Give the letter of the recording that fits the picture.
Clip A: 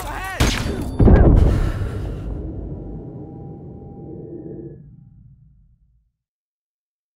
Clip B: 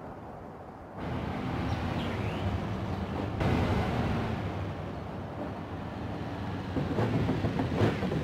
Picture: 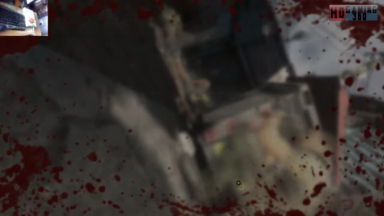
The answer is A